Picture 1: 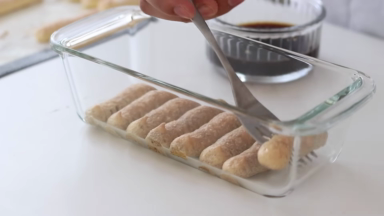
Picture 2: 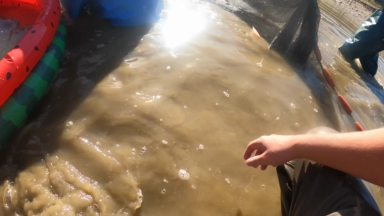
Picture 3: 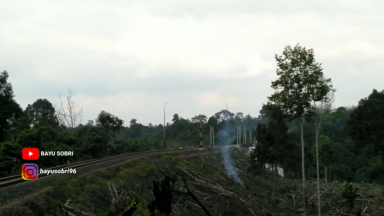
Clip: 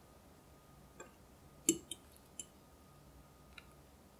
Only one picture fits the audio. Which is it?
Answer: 1